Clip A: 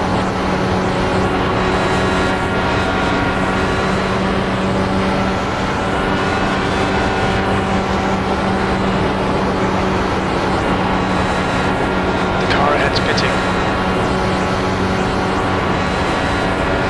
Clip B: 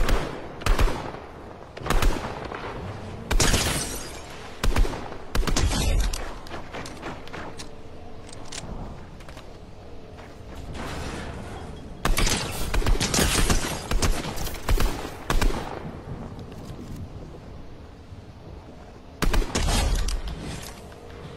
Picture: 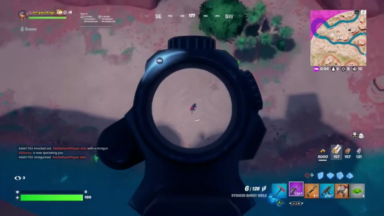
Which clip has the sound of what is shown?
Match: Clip B